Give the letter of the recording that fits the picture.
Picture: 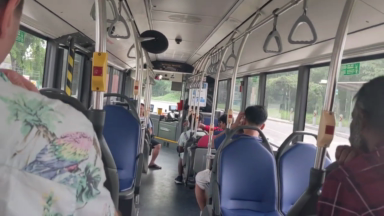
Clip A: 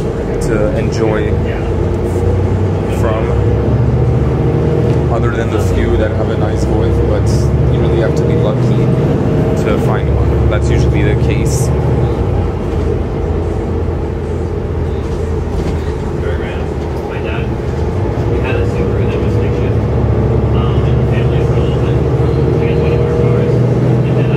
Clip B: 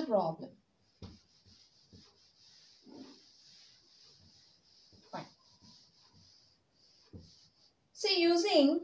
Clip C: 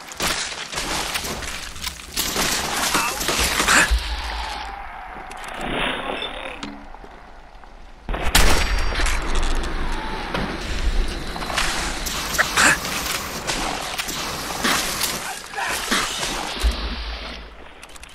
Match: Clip A